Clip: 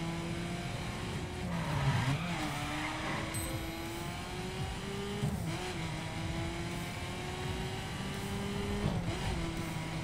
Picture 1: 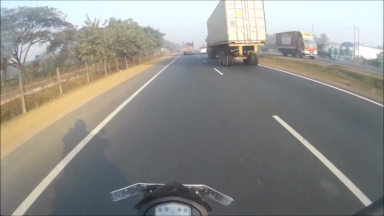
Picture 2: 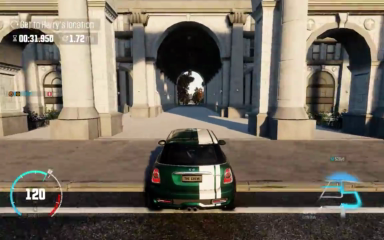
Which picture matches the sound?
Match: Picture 2